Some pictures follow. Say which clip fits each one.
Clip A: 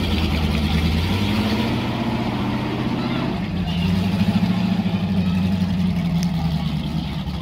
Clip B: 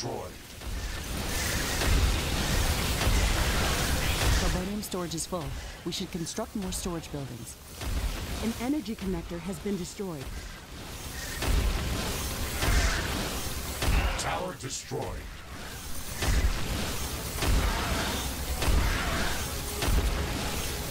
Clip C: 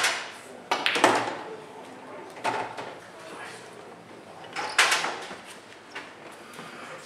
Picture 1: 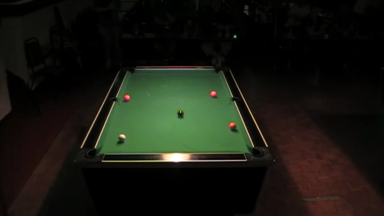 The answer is C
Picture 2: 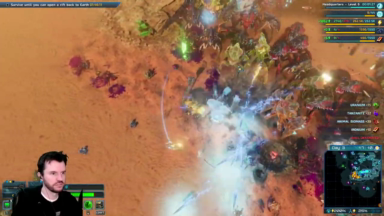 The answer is B